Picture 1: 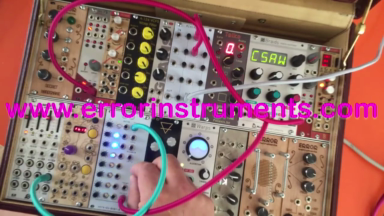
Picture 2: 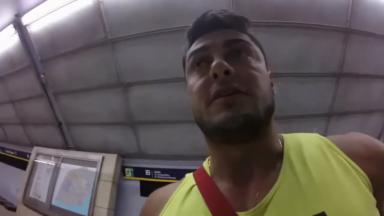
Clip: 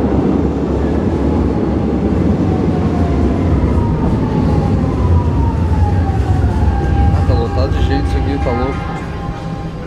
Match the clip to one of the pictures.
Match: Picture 2